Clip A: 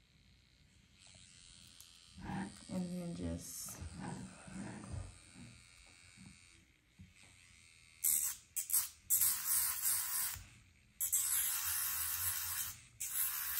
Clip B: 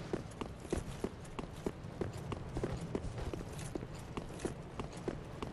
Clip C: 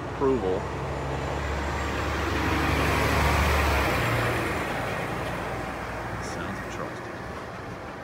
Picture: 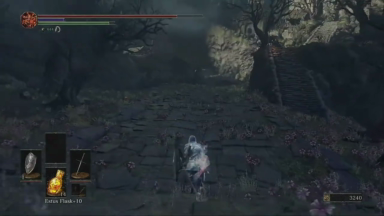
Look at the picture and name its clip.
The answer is B